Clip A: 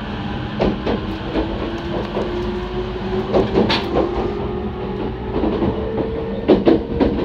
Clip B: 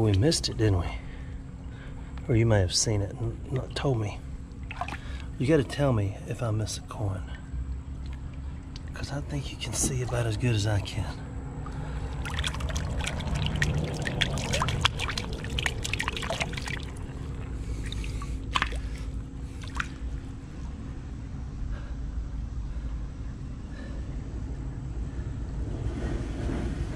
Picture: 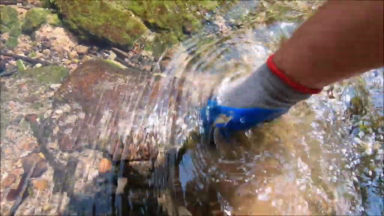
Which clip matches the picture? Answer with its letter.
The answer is B